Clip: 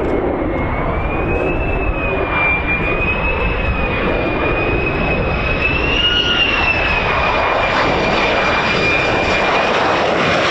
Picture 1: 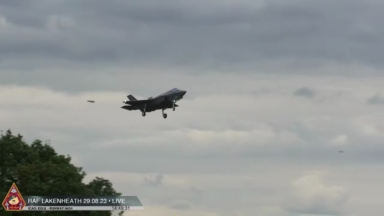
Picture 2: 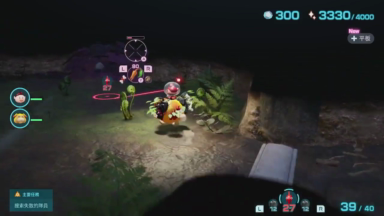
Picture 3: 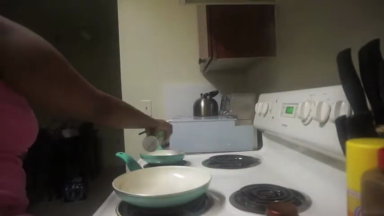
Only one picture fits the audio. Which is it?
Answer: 1